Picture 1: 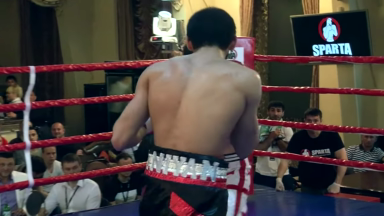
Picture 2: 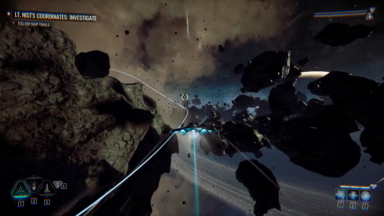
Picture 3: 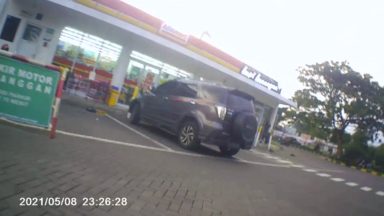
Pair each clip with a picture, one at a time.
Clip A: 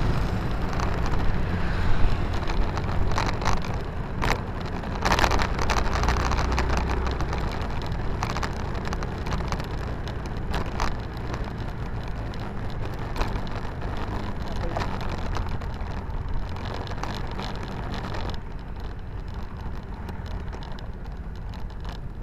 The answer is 3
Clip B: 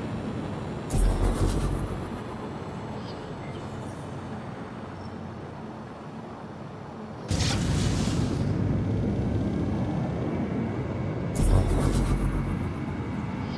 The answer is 2